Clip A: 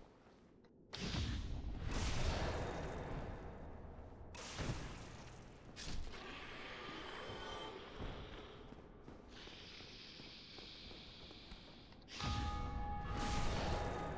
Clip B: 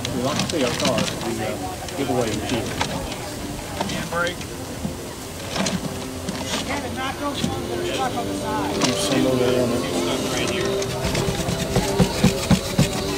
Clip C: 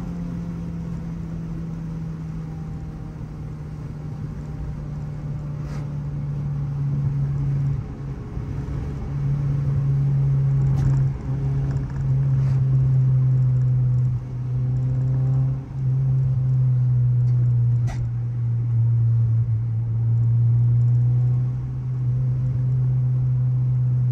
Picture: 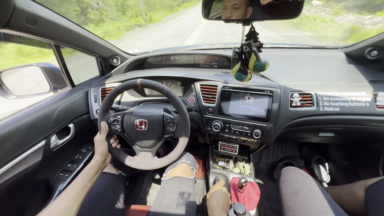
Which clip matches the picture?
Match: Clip C